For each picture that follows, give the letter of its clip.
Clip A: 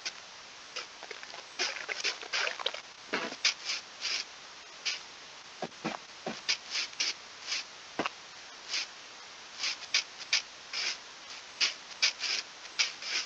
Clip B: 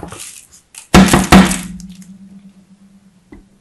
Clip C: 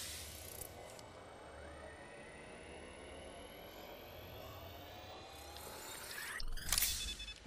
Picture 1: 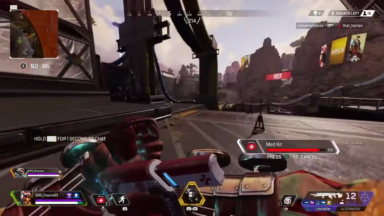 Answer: C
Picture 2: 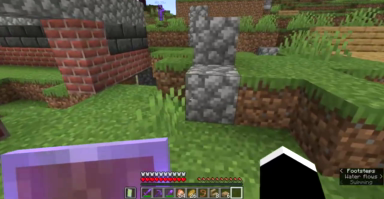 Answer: A